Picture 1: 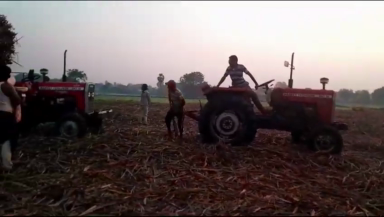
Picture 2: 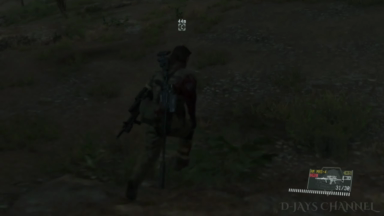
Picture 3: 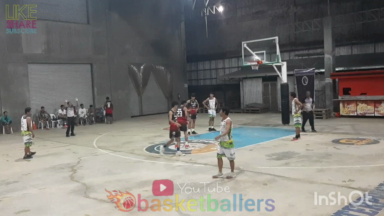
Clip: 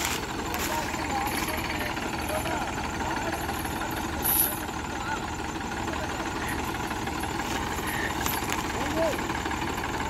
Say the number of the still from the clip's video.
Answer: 1